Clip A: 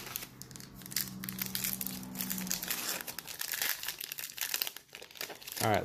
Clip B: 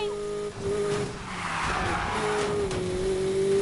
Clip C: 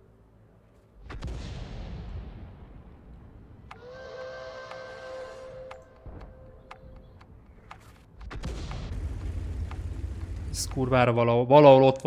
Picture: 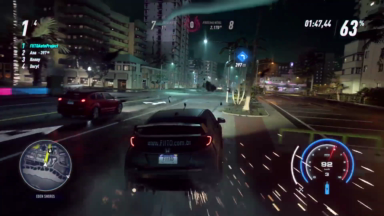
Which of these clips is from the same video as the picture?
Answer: B